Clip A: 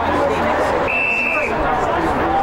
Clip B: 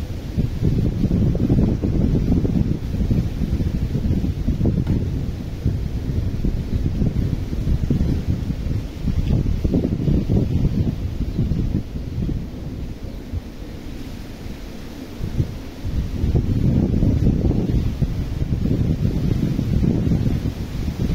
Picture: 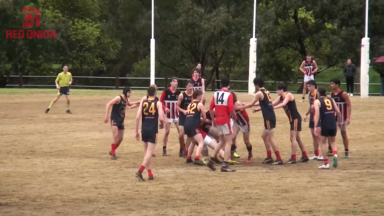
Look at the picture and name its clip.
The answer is A